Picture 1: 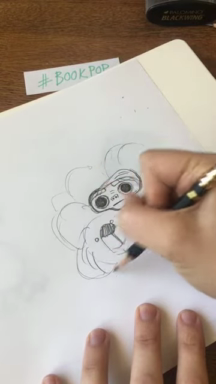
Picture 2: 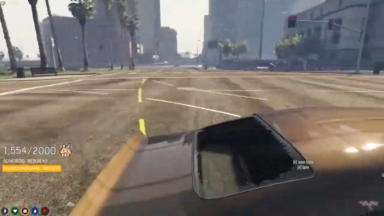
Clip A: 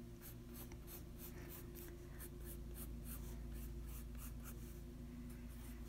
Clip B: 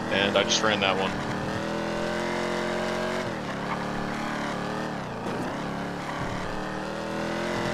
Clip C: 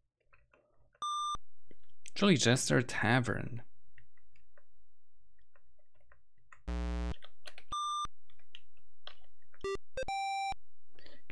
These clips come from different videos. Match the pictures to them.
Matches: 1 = A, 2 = B